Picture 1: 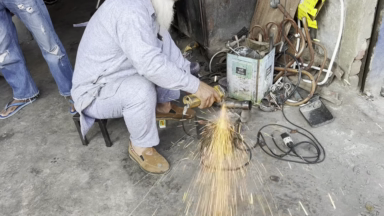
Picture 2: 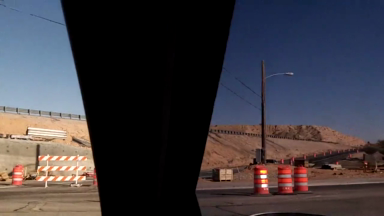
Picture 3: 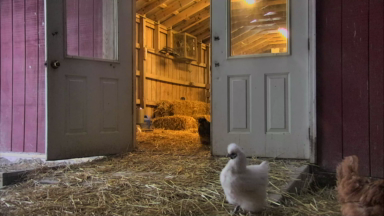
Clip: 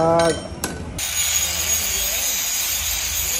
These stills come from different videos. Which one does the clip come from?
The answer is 1